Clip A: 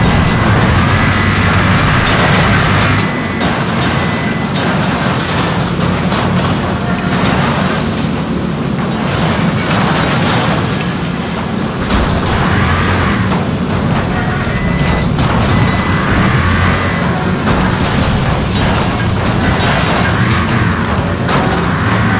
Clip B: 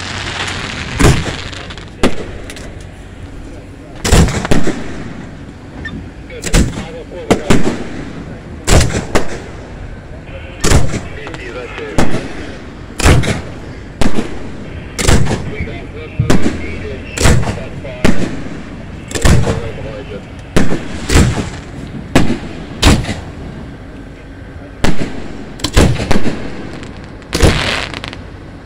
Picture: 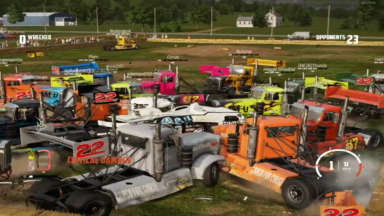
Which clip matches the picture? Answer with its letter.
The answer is A